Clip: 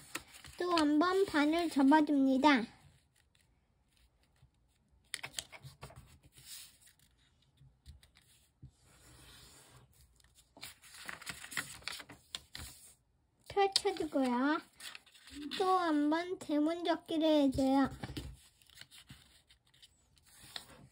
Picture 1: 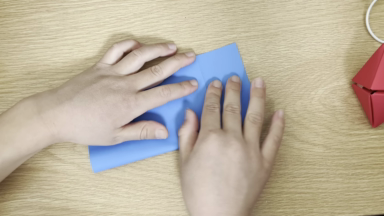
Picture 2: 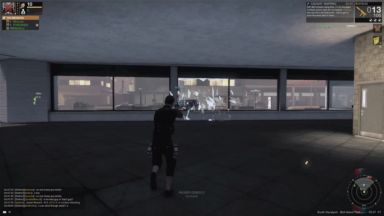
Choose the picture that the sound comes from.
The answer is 1